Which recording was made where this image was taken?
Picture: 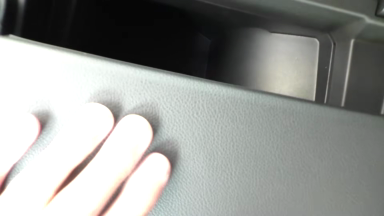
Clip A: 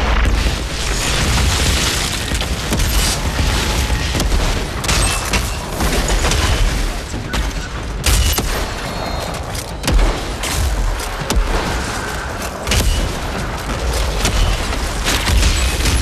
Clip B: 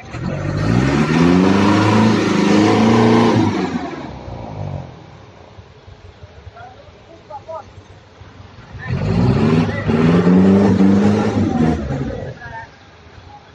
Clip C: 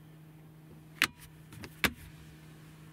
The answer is C